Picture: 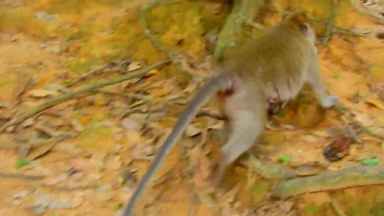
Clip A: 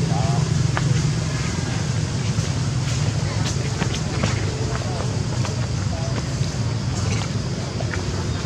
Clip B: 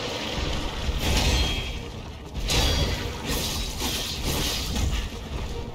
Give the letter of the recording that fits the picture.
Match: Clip A